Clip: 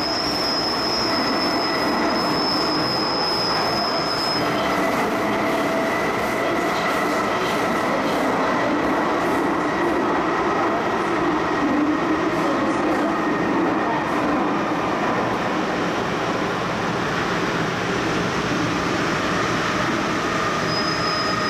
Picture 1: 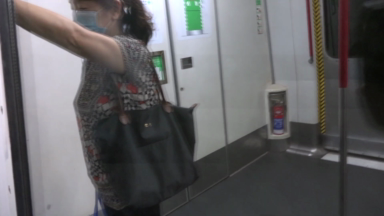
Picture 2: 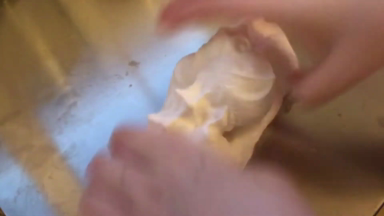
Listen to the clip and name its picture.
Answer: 1